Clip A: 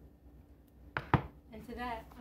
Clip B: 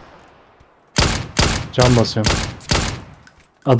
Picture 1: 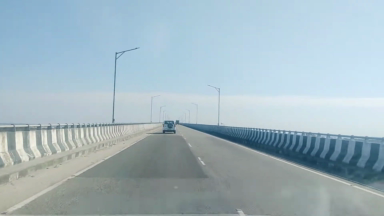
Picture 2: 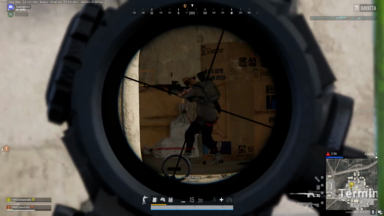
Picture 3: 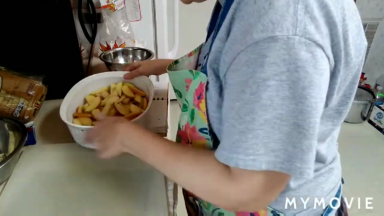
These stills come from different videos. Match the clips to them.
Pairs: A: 3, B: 2